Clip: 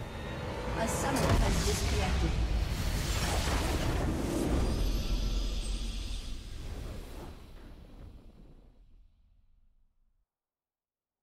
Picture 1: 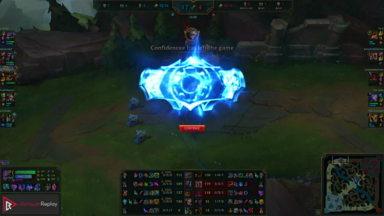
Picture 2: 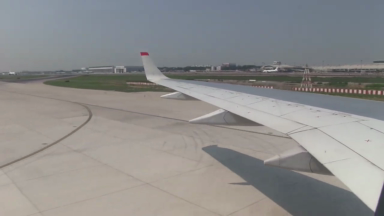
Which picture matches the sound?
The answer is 1